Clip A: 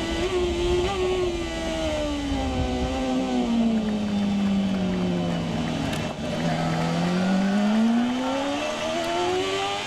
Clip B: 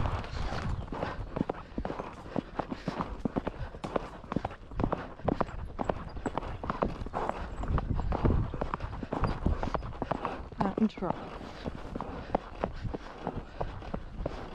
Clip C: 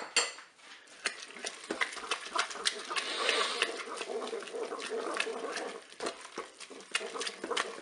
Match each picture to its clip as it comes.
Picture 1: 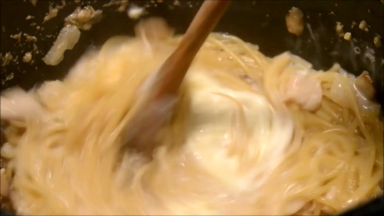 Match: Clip C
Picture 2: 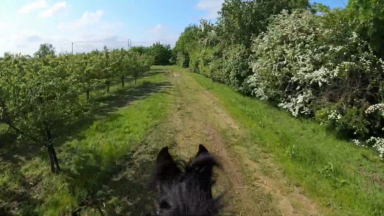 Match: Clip B